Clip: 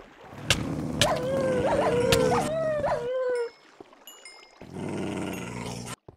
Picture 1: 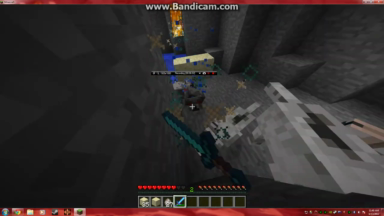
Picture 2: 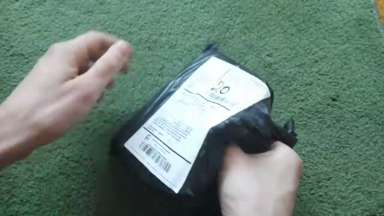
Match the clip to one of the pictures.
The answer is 1